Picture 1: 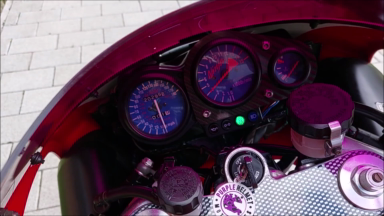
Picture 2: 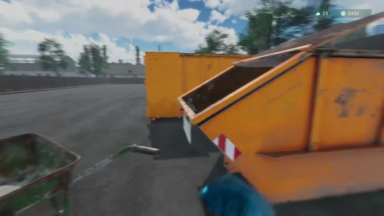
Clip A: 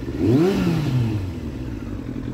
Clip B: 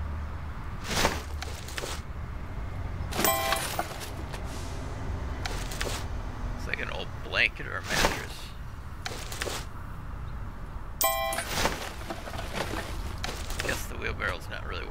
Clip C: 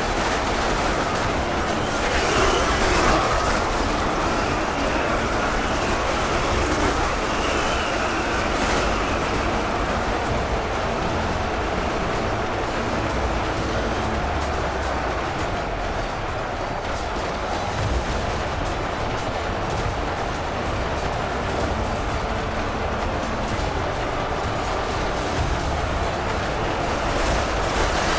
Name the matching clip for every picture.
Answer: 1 A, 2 B